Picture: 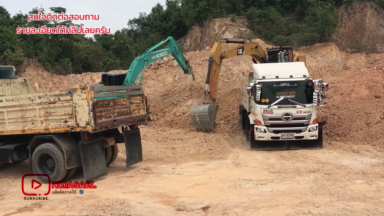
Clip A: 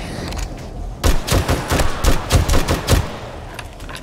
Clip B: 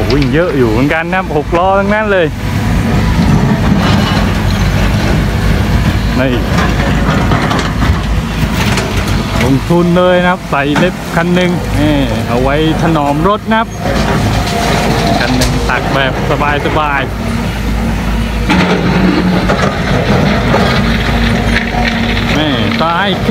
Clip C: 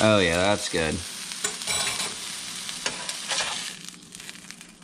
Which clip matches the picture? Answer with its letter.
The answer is B